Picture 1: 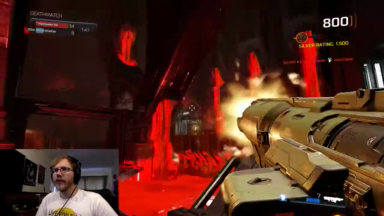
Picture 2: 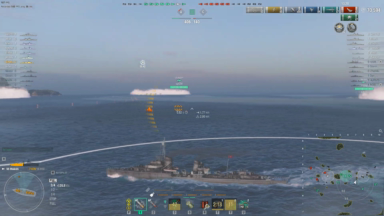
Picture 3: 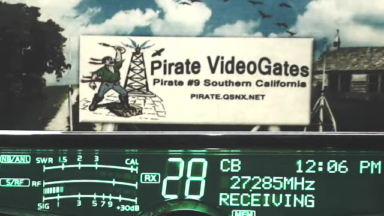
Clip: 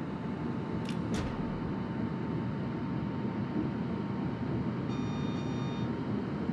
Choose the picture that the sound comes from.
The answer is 2